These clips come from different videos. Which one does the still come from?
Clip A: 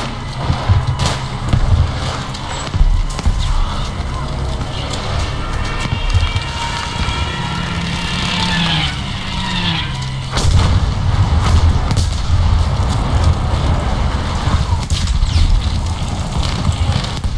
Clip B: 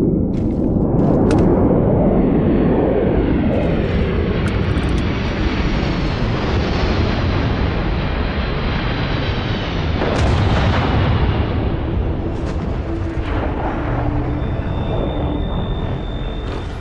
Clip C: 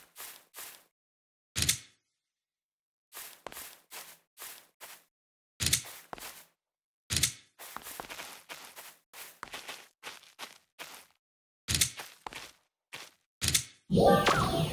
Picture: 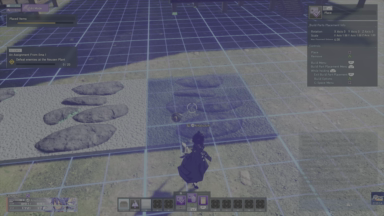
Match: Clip C